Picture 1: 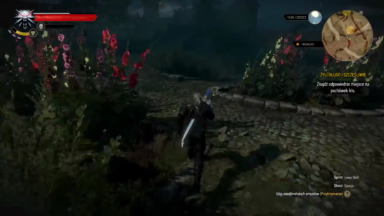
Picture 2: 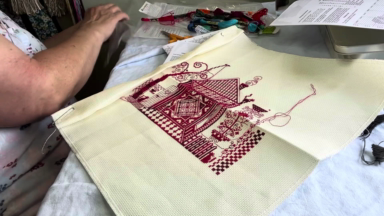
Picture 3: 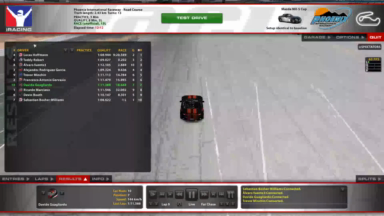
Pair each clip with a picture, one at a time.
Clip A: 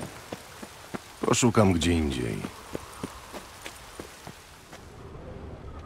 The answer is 1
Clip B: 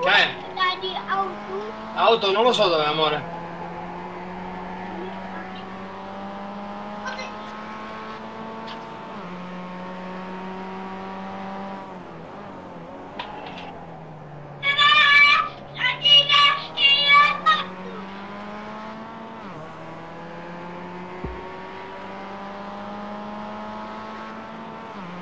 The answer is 3